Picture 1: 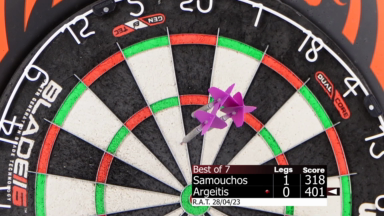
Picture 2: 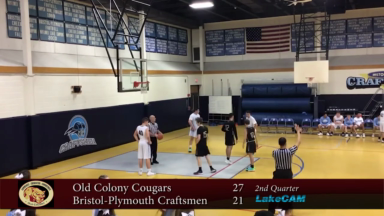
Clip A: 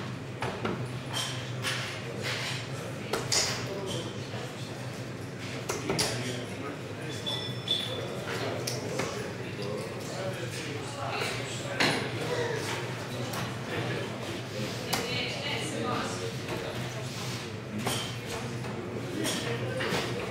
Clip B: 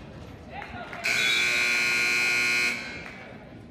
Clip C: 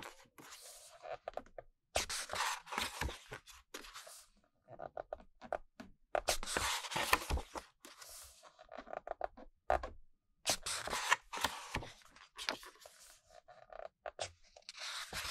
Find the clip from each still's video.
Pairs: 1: A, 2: B